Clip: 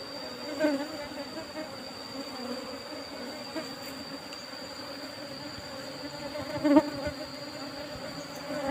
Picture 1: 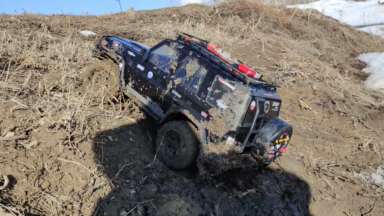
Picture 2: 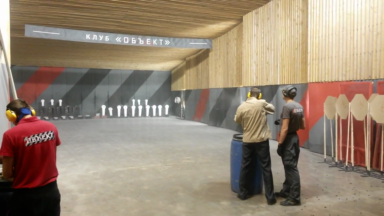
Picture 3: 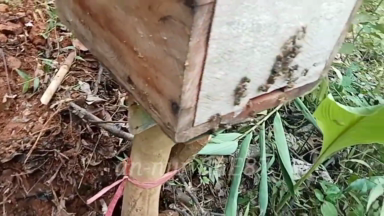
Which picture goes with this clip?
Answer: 3